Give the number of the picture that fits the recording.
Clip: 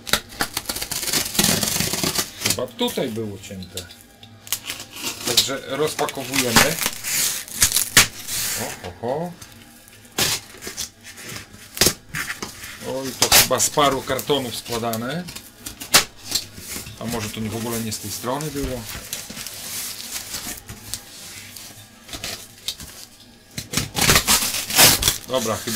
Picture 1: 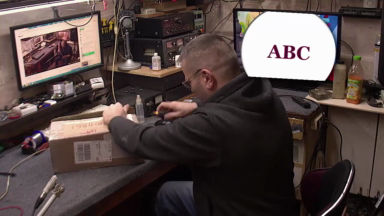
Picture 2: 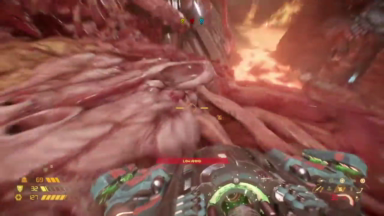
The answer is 1